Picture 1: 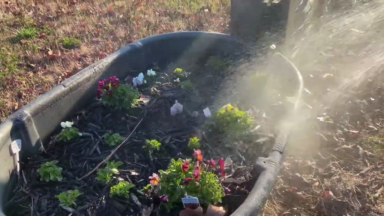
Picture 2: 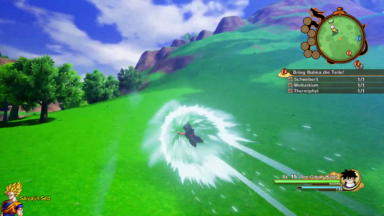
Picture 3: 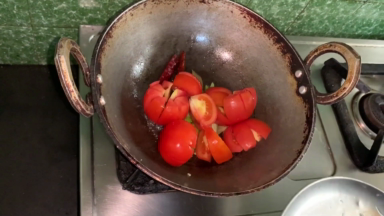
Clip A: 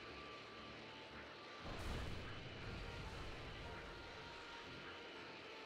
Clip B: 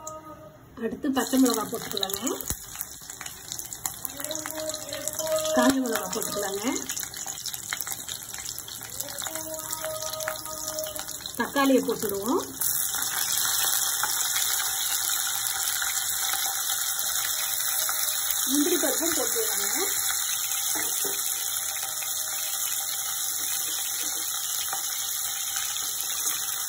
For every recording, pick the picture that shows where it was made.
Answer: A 2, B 3